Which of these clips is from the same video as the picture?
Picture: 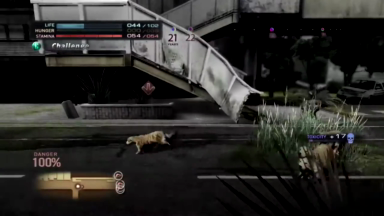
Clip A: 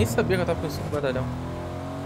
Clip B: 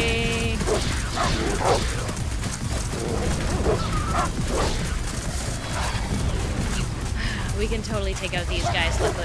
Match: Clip B